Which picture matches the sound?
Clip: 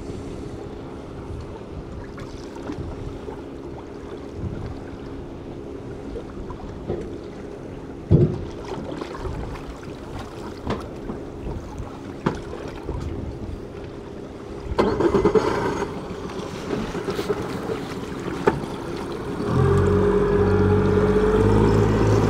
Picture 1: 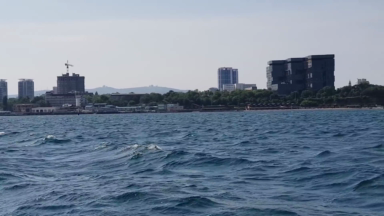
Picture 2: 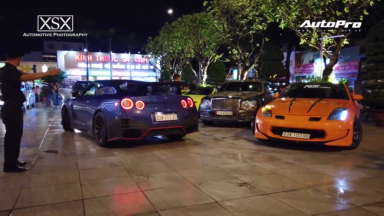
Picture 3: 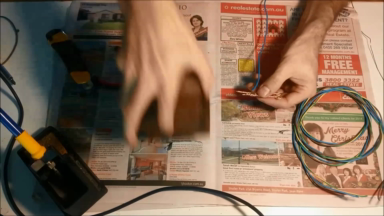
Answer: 1